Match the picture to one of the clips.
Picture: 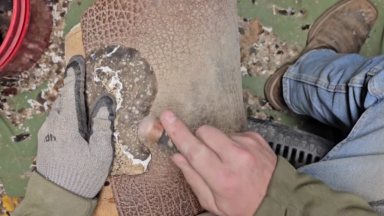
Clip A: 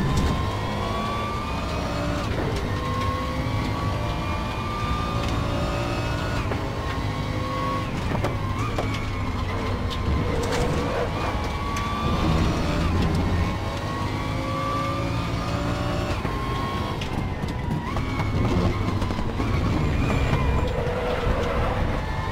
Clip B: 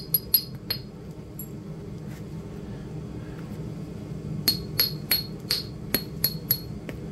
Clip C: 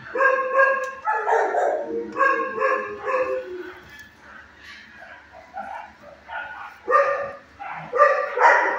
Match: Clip B